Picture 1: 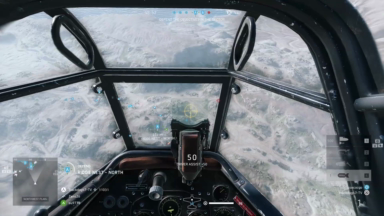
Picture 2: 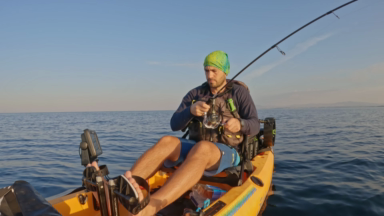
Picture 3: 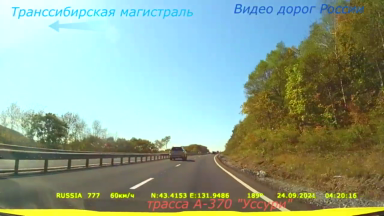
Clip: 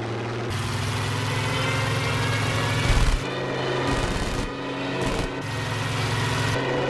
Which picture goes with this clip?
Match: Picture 1